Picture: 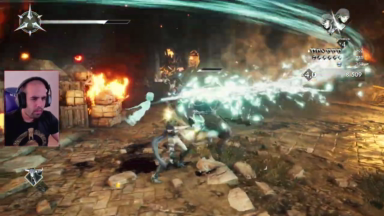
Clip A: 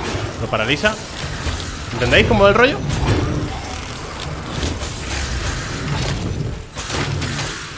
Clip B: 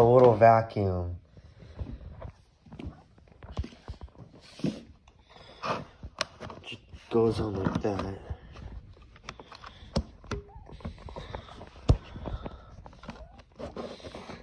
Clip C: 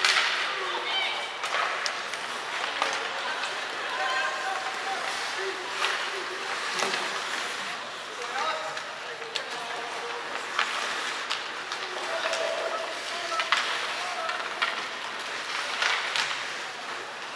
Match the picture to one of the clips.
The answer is A